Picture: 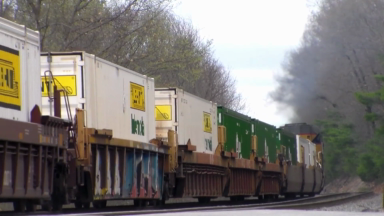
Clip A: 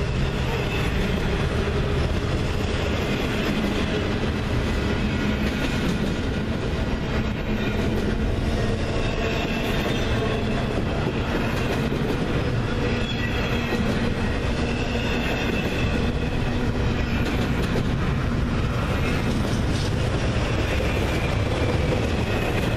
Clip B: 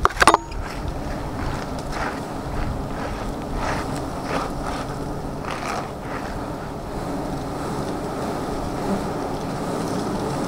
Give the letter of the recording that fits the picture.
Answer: A